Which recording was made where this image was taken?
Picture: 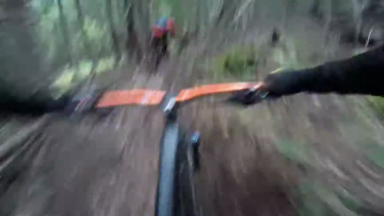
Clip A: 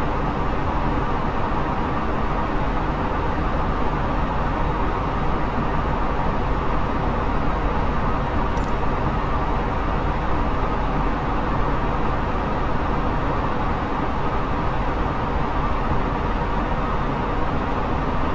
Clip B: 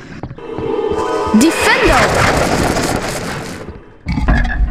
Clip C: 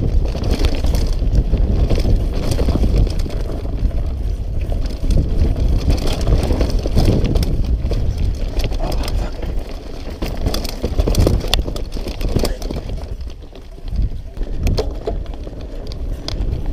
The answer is C